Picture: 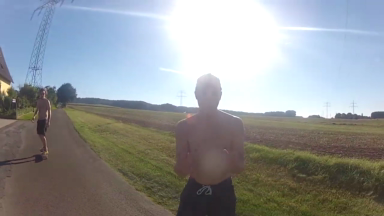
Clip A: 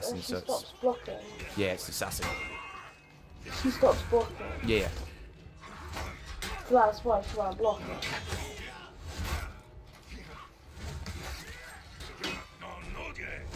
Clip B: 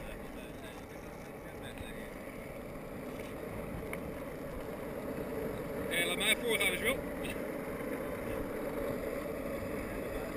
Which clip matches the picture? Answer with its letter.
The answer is B